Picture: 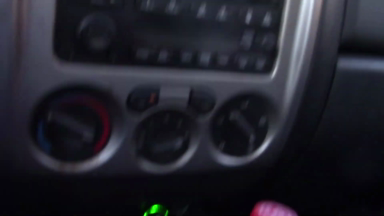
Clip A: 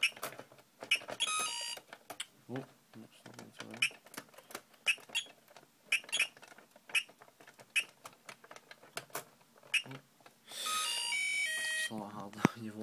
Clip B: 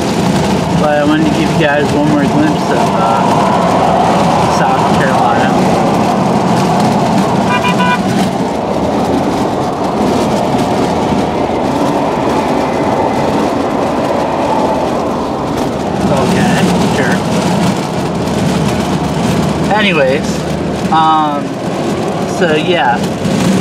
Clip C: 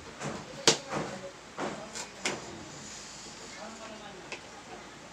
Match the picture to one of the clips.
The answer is B